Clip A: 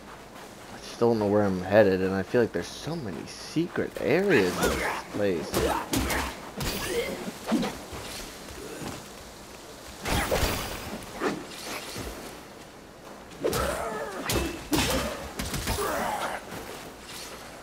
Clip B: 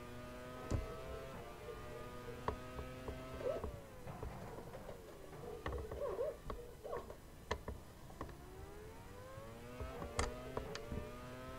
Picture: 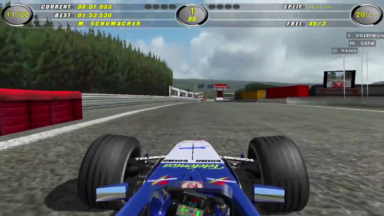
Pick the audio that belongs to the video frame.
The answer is B